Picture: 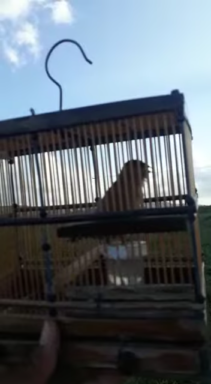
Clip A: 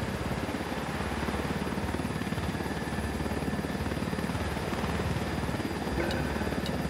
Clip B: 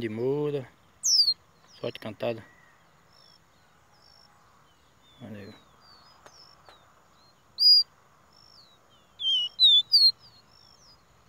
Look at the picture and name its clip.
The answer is B